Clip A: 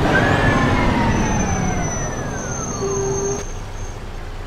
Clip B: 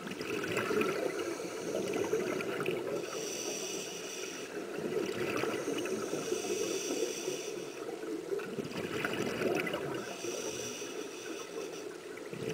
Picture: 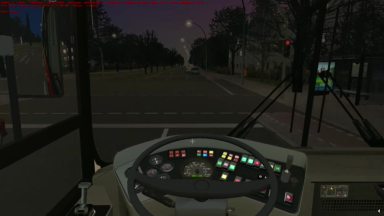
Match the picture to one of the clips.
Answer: A